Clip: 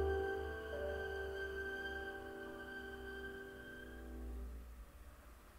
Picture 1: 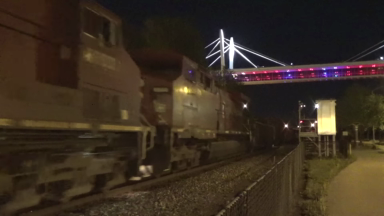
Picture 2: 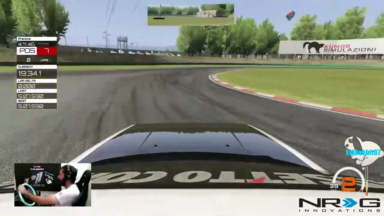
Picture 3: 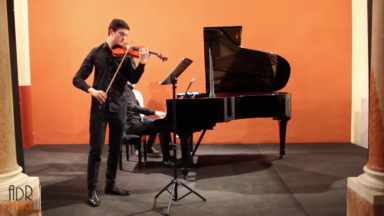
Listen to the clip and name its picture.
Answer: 3